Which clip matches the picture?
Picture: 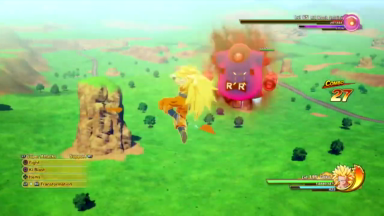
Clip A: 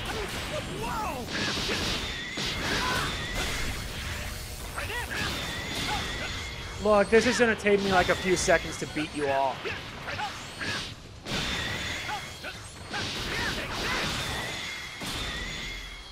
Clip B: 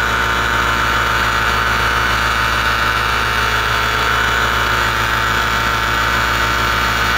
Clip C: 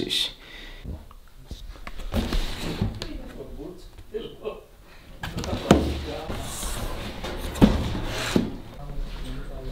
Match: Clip A